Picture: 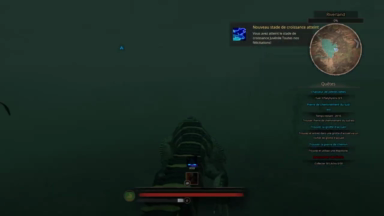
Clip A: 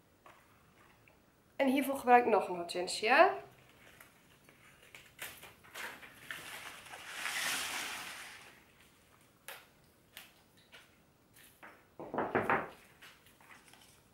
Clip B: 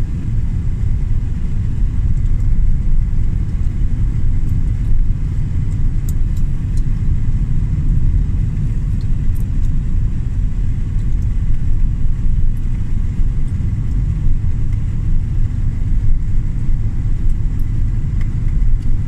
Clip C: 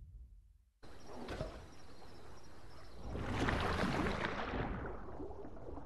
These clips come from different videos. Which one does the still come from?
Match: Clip C